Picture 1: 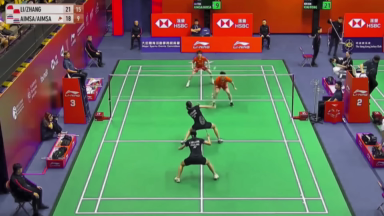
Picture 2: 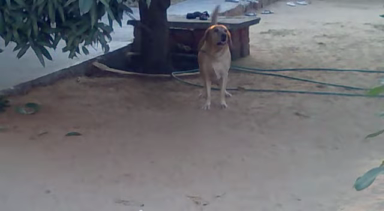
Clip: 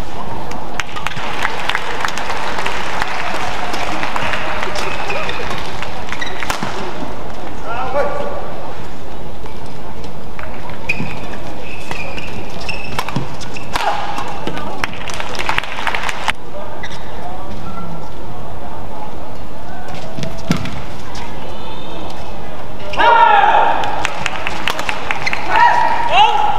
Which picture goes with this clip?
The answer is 1